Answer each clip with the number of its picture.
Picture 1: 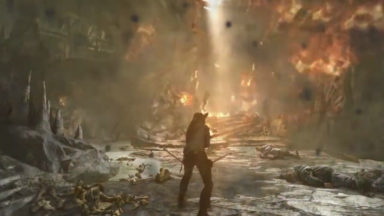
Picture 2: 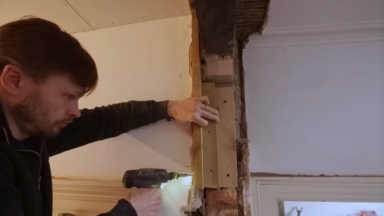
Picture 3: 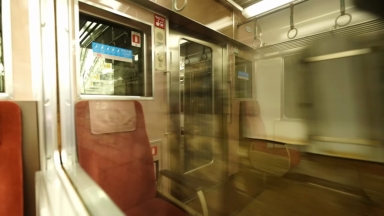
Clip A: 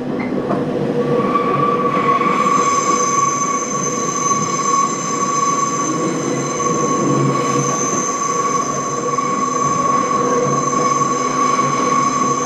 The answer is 3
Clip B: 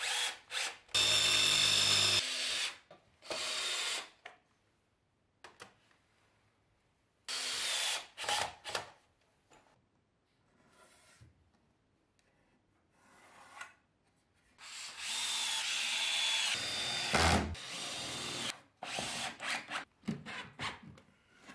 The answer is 2